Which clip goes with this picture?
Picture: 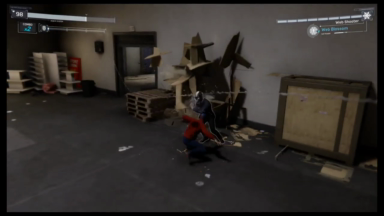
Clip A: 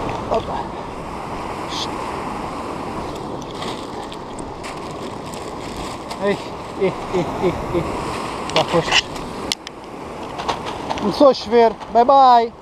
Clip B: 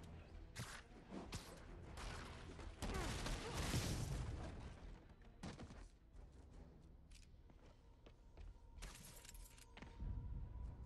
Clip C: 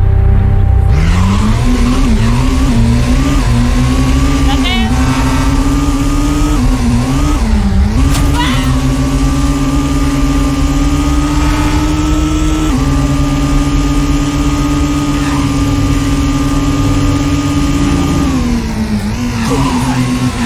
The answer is B